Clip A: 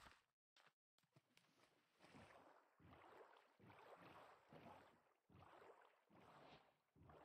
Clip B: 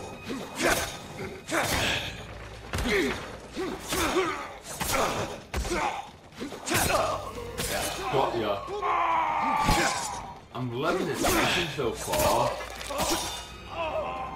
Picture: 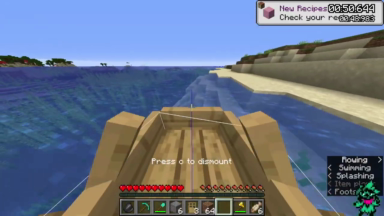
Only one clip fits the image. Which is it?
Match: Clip A